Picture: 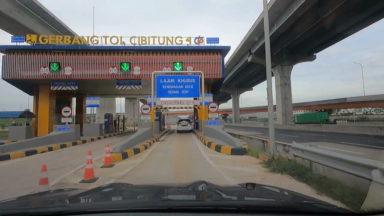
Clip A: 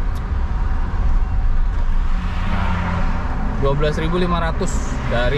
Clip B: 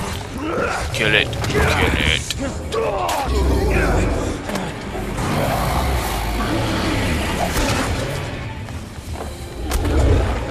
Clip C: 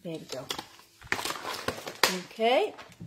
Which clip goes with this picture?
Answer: A